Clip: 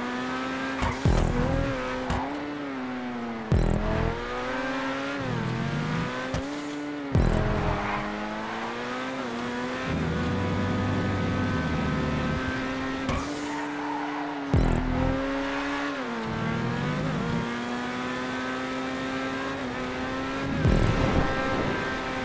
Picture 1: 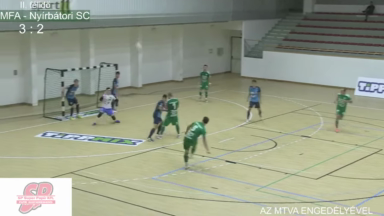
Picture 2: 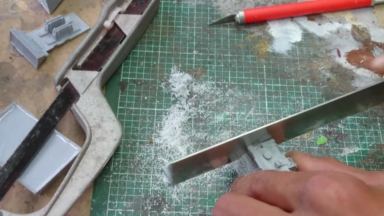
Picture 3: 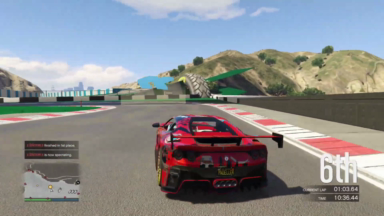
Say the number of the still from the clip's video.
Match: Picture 3